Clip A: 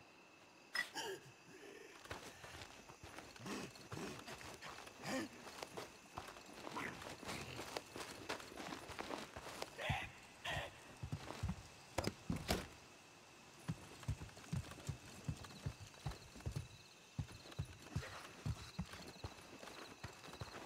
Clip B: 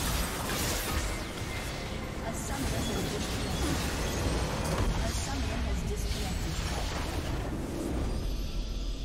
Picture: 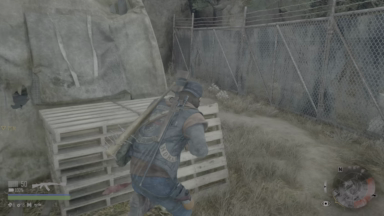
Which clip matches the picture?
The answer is A